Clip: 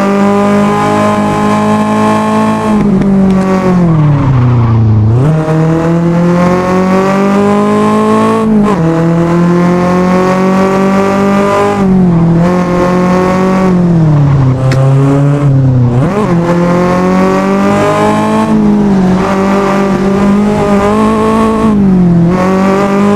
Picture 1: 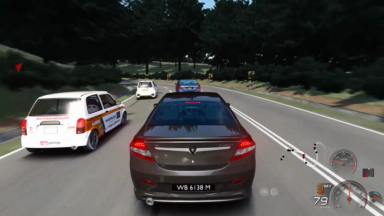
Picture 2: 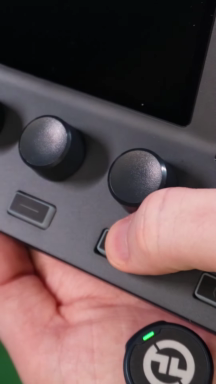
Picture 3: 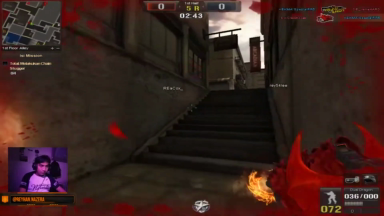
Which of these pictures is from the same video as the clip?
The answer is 1